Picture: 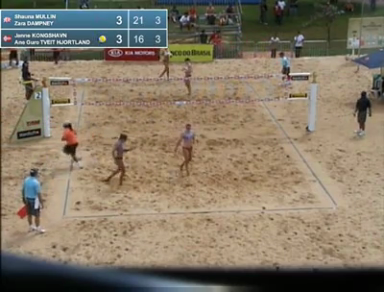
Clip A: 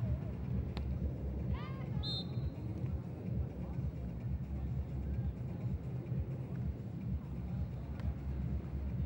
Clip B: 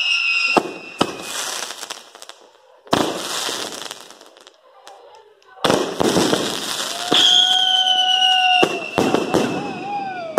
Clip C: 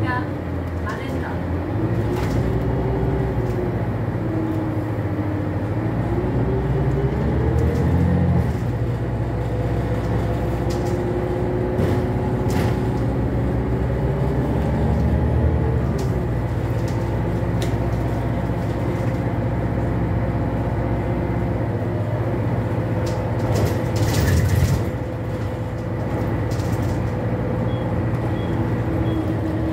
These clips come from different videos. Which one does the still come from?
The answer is A